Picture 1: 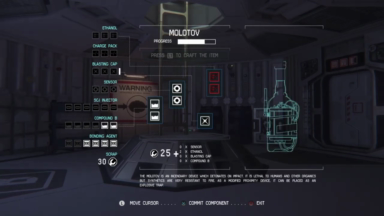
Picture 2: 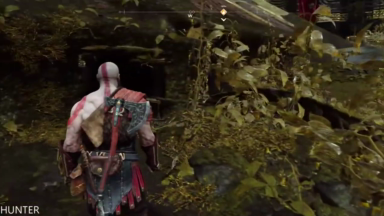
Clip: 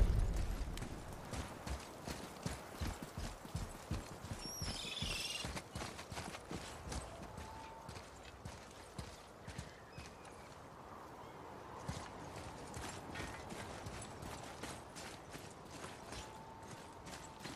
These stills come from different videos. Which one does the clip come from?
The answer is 2